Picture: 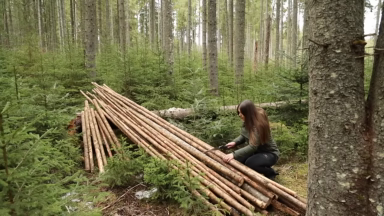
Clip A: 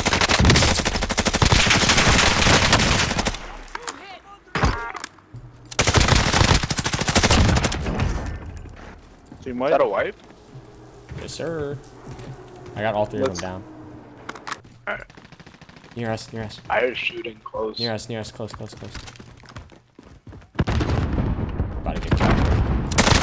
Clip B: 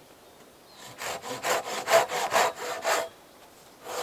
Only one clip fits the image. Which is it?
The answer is B